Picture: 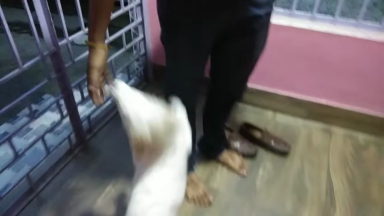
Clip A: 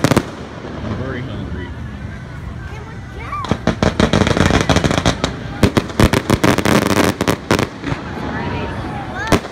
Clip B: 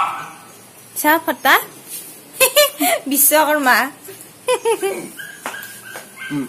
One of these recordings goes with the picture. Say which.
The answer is B